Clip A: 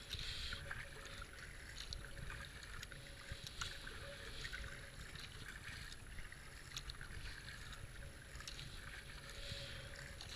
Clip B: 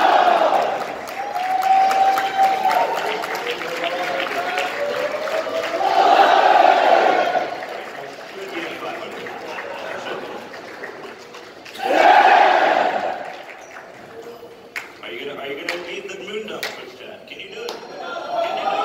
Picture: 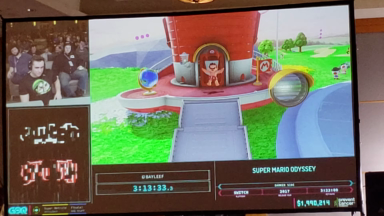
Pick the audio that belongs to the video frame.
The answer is B